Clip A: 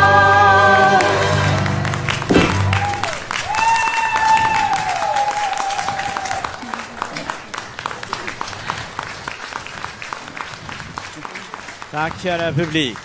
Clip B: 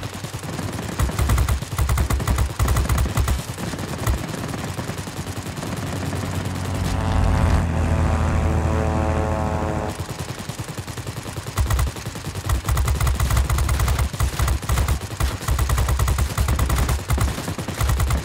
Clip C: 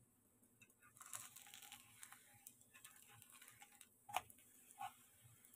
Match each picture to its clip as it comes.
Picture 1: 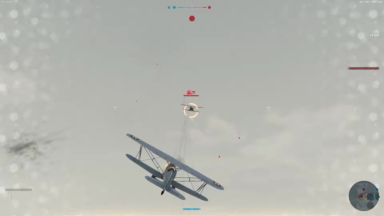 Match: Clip B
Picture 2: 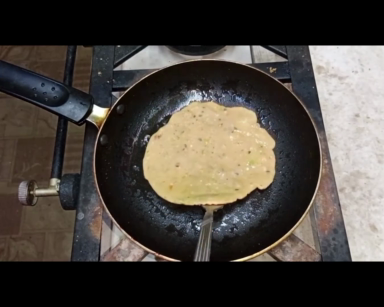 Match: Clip C